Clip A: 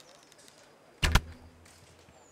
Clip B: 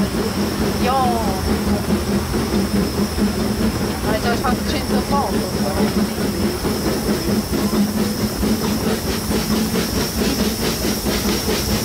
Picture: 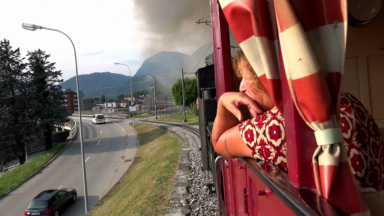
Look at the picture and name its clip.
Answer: B